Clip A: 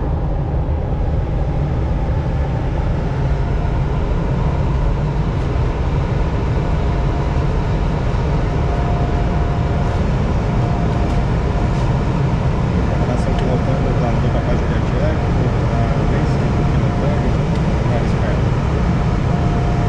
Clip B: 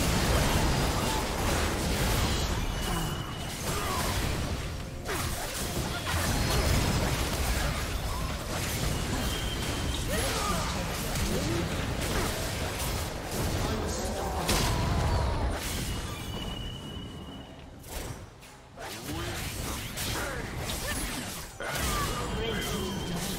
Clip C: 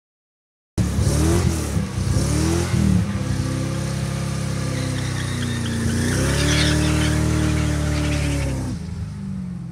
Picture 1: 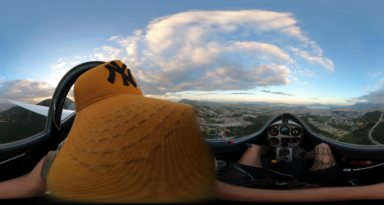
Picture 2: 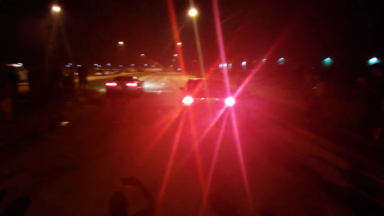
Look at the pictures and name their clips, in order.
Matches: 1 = A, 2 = C